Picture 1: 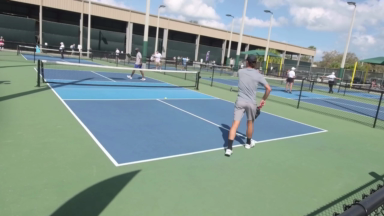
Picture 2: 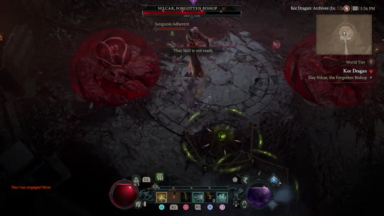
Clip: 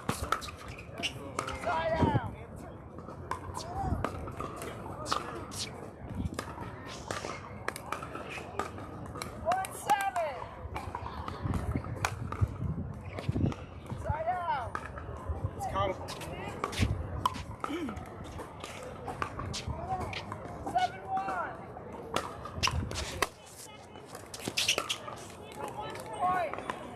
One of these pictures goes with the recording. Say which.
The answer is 1